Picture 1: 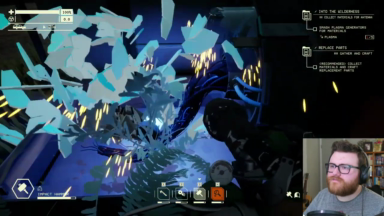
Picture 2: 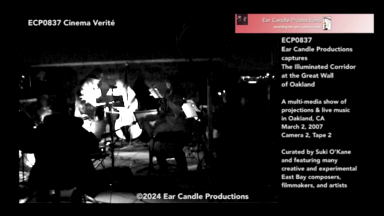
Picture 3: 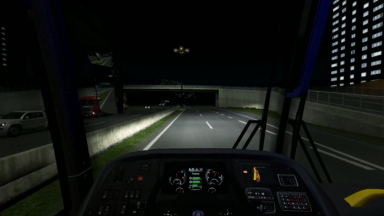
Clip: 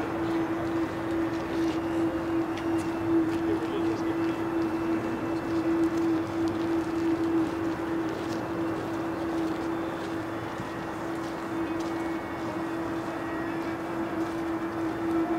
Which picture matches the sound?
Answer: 2